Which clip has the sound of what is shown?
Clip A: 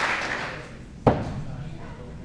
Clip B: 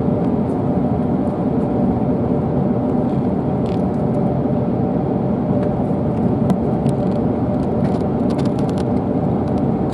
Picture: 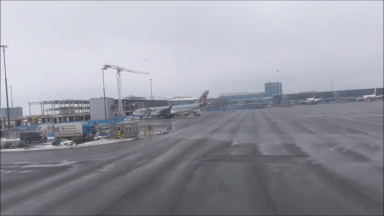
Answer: B